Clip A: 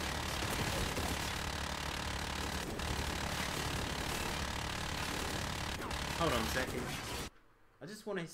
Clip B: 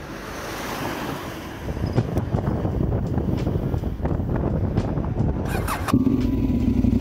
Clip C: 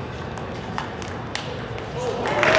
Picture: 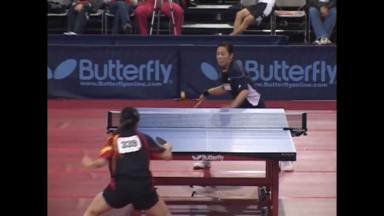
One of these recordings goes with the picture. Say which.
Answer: C